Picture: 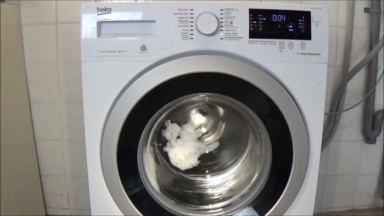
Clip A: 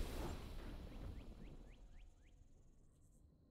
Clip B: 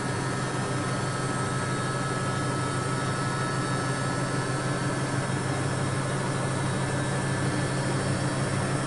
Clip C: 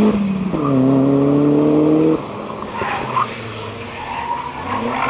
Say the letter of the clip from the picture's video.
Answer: B